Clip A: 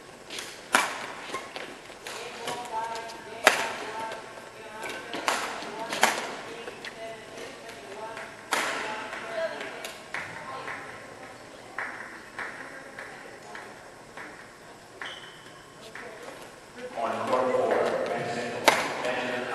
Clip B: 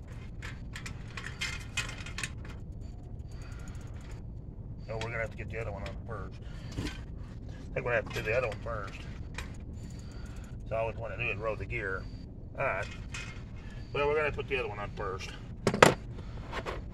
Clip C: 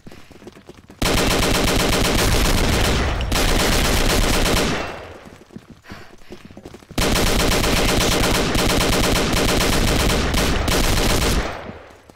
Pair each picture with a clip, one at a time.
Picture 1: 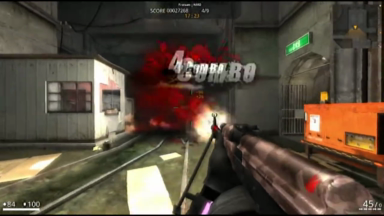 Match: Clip C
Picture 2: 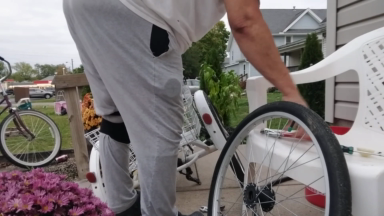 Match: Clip B